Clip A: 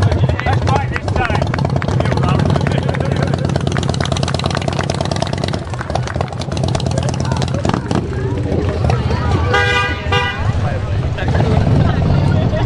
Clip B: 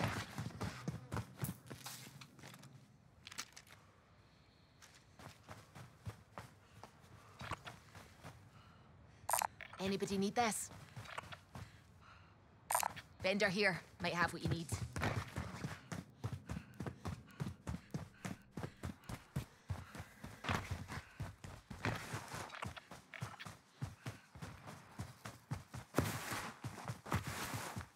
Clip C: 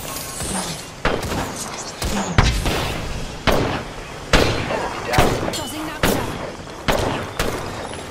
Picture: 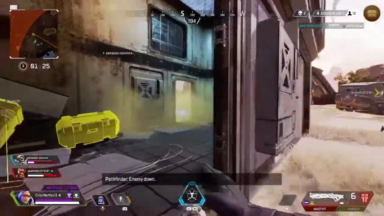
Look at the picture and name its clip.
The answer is C